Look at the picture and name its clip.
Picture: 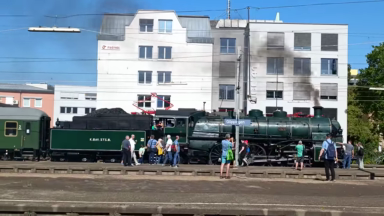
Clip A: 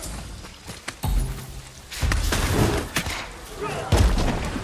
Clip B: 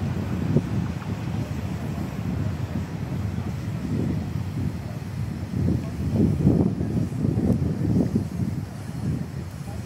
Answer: B